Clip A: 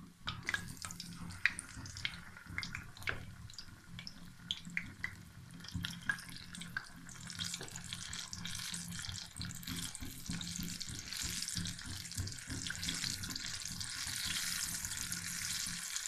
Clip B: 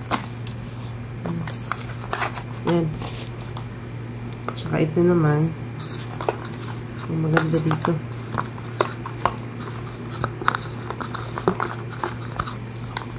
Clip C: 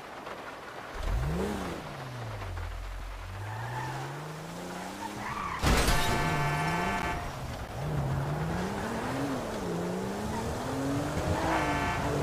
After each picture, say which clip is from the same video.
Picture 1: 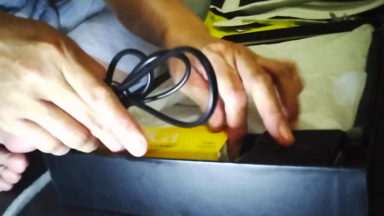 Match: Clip B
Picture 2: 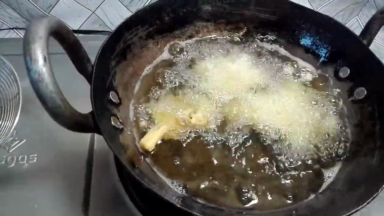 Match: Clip A